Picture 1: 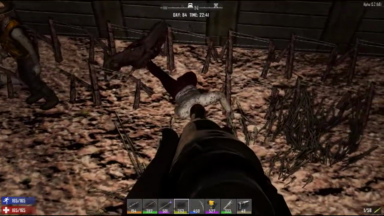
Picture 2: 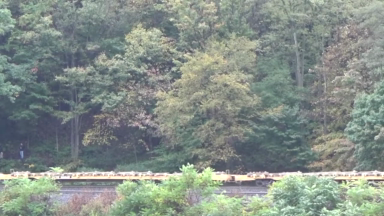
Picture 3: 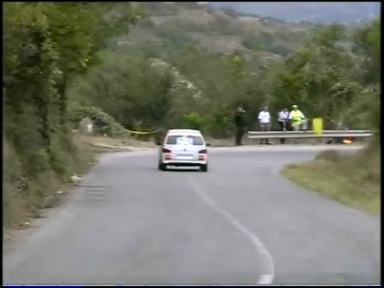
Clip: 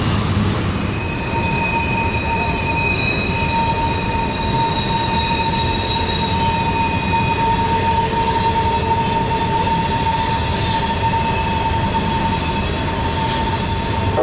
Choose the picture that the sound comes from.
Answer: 2